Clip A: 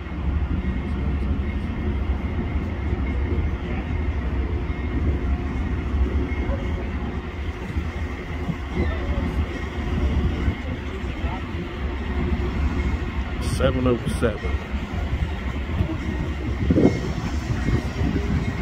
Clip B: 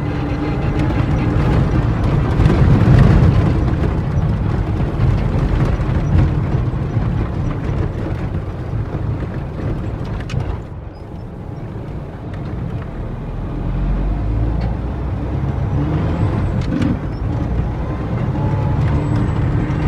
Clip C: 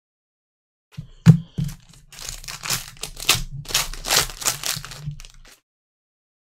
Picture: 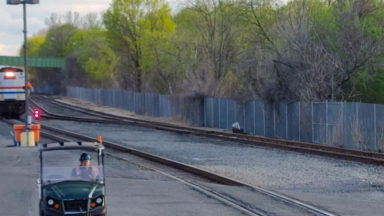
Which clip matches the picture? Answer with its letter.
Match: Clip A